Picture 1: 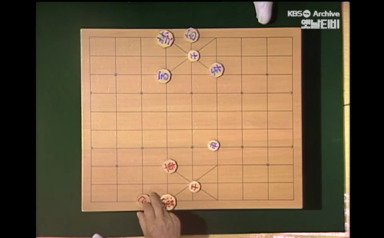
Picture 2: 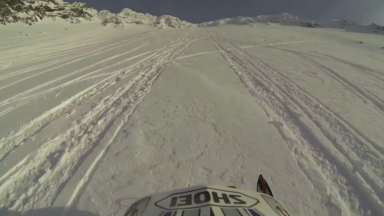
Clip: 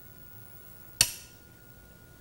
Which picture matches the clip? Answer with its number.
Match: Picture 1